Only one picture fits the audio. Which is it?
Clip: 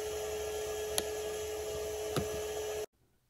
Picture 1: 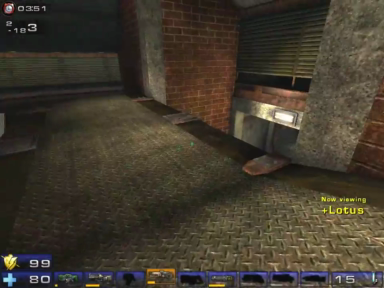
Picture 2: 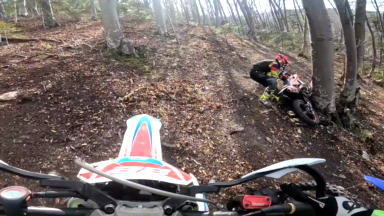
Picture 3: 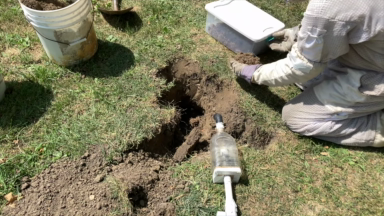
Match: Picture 3